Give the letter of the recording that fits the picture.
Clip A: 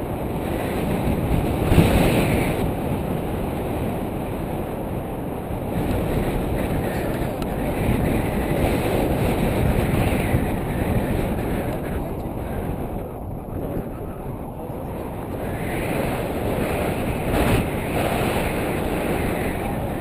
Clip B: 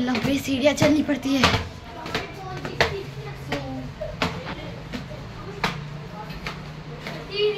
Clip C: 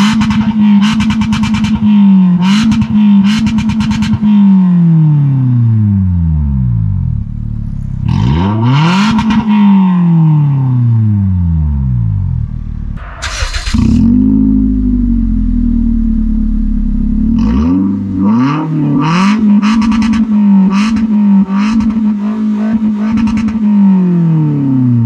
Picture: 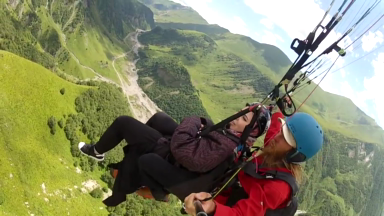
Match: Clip A